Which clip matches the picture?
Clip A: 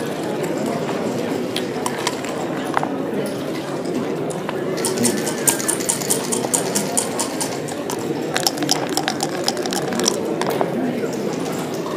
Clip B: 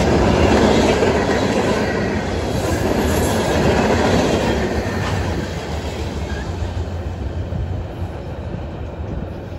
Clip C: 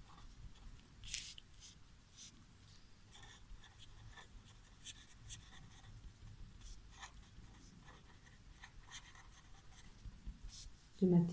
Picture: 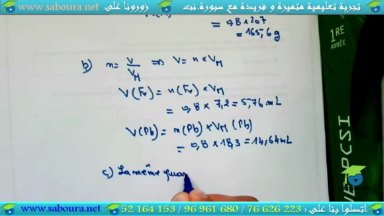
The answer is C